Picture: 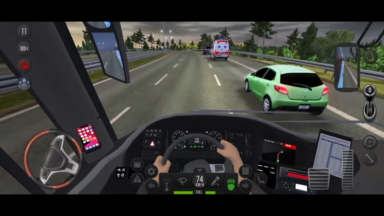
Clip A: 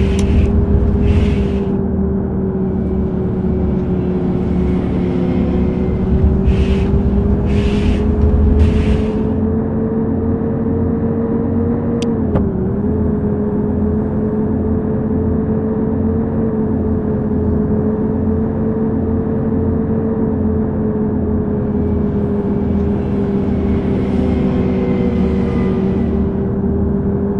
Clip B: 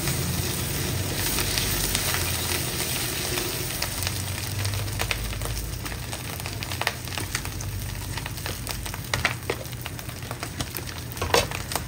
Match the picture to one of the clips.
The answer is A